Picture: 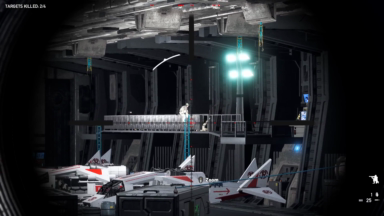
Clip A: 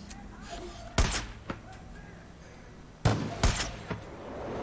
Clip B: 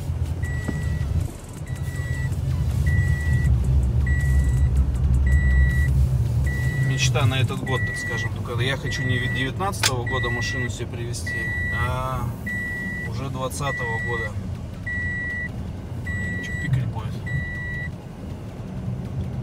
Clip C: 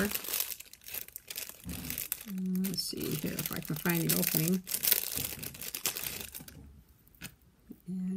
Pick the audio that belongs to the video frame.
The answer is A